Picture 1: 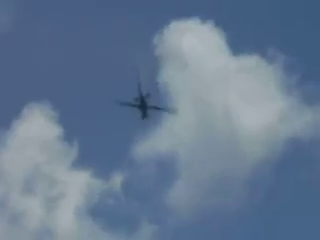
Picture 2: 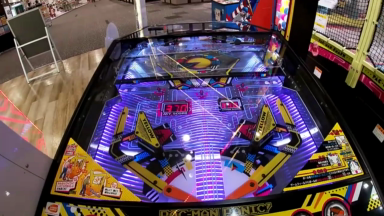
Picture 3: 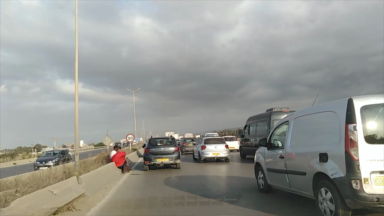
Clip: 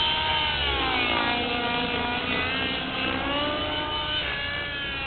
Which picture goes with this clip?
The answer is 1